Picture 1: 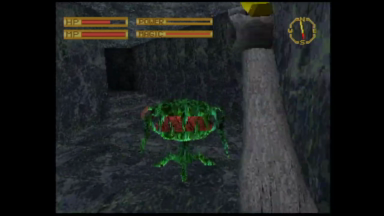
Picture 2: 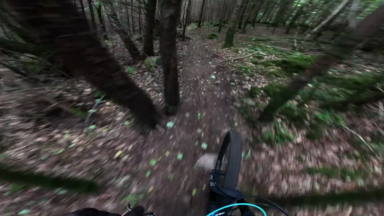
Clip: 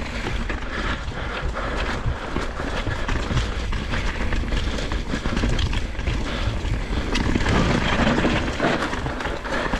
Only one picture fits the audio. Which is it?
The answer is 2